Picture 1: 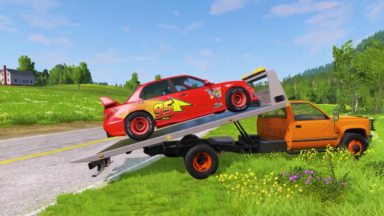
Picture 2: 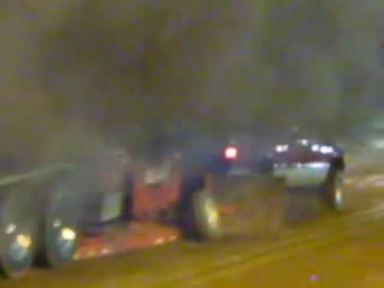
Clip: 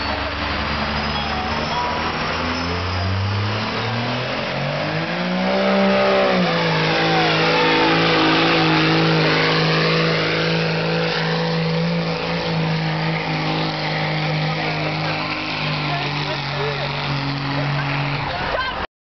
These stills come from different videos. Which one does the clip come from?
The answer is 2